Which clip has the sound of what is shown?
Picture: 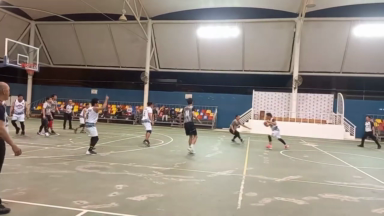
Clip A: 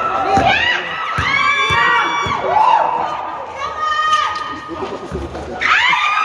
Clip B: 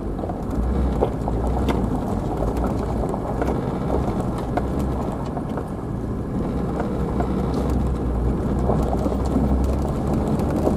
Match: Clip A